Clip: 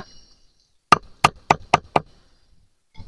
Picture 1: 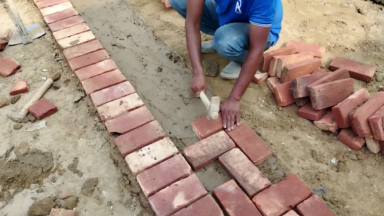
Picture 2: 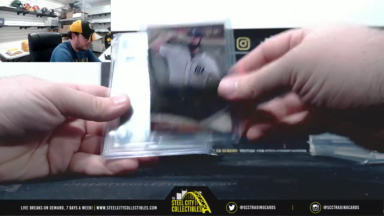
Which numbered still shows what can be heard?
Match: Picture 1